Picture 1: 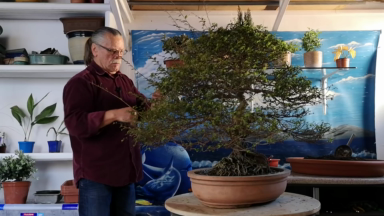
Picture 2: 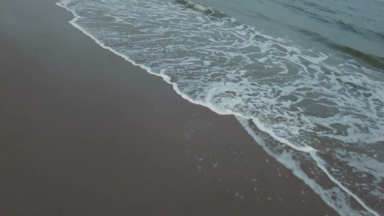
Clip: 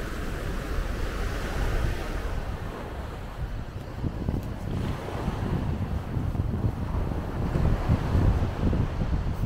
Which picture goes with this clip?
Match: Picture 2